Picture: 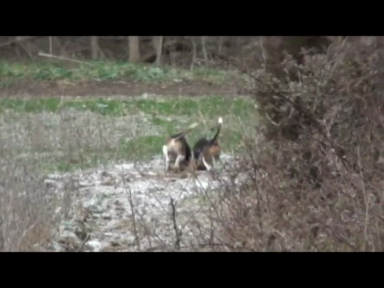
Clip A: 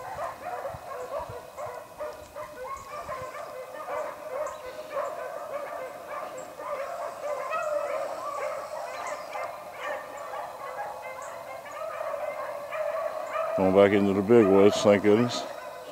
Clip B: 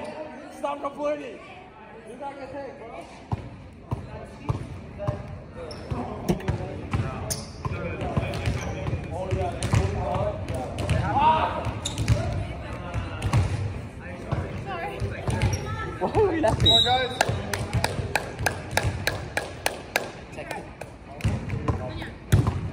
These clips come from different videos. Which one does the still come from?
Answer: A